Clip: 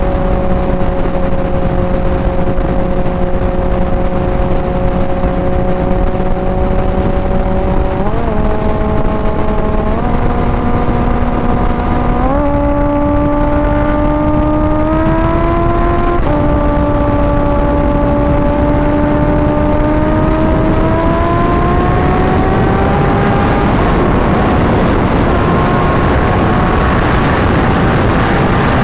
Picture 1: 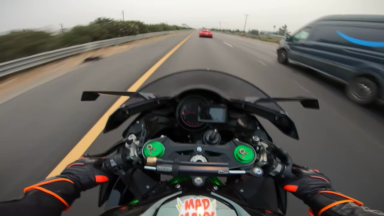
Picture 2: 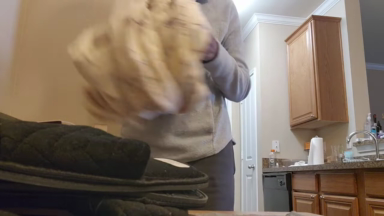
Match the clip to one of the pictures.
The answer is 1